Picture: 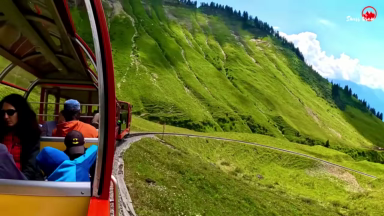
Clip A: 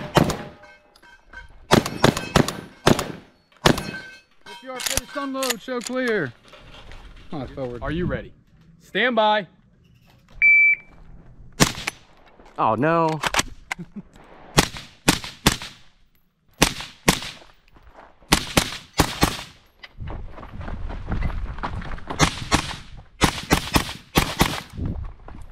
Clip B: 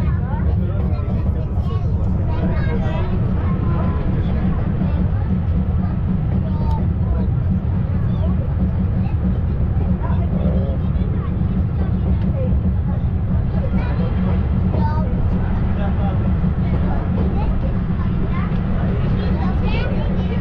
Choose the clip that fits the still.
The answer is B